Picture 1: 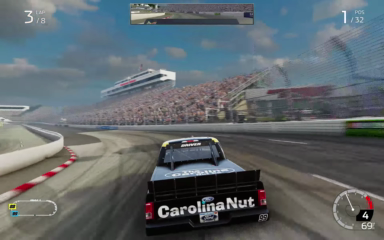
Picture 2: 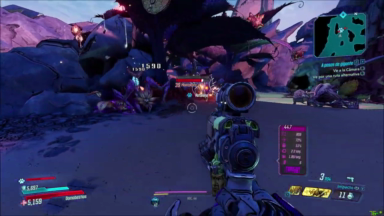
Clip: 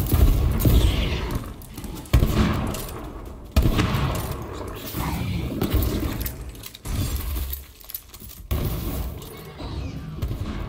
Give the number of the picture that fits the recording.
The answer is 2